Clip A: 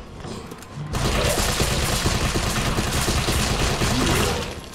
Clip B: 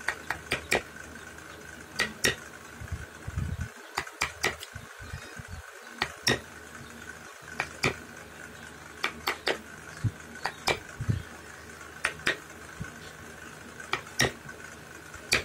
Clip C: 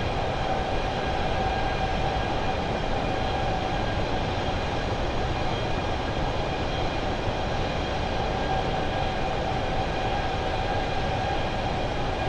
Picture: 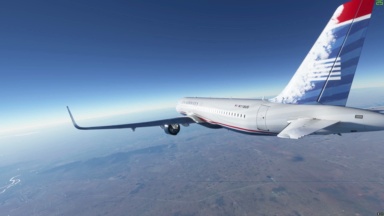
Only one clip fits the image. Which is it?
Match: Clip C